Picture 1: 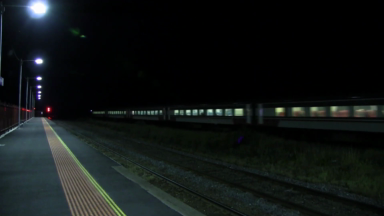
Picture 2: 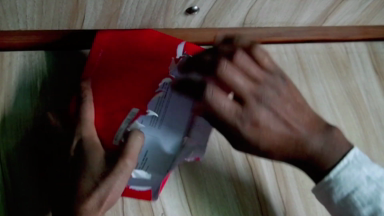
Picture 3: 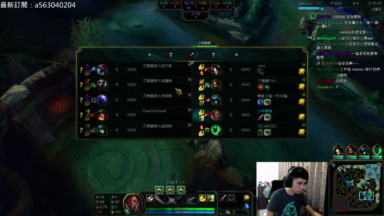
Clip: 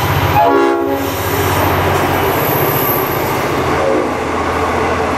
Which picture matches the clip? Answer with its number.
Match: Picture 1